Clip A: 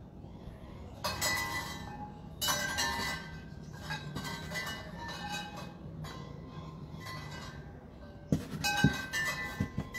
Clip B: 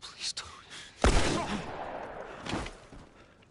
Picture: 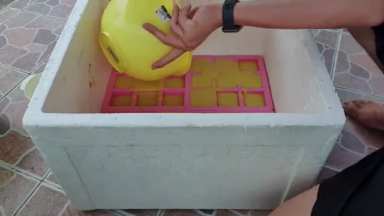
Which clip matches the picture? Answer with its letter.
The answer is A